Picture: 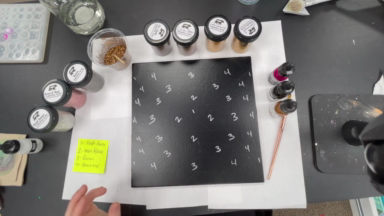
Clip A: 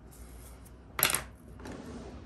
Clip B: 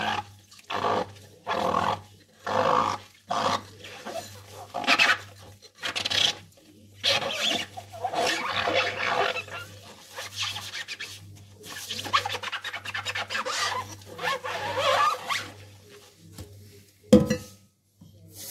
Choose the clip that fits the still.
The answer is A